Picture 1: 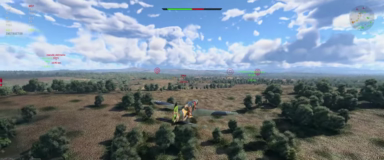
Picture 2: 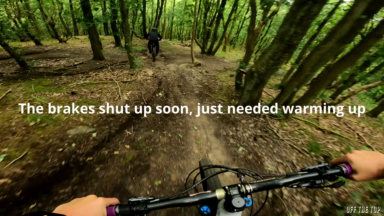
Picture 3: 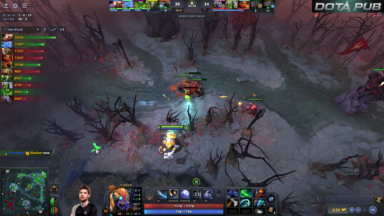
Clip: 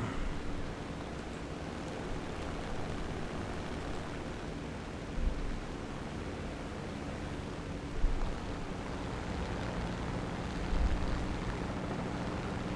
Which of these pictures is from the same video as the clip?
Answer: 1